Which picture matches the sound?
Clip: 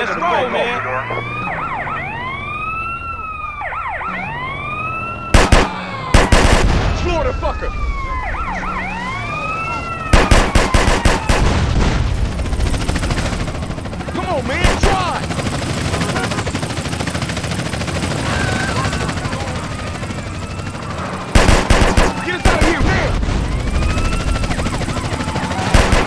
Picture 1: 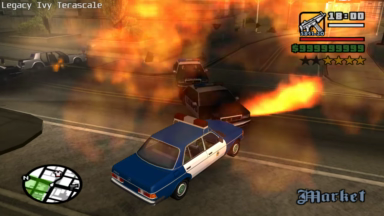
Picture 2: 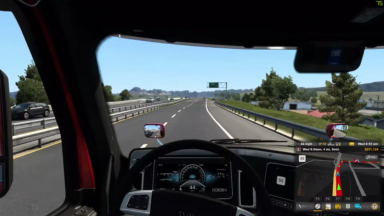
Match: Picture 1